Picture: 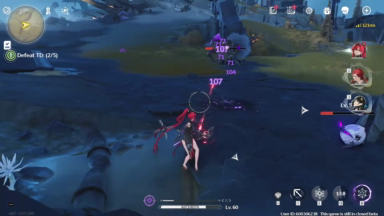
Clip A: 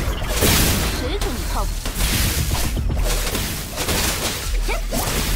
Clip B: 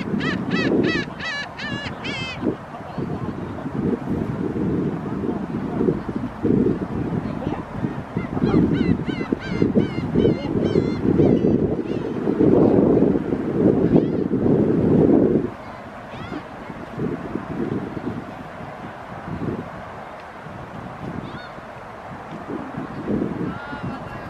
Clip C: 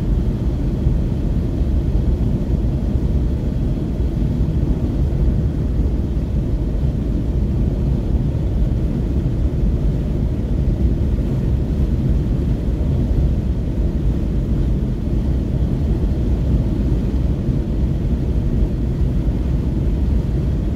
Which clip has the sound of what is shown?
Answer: A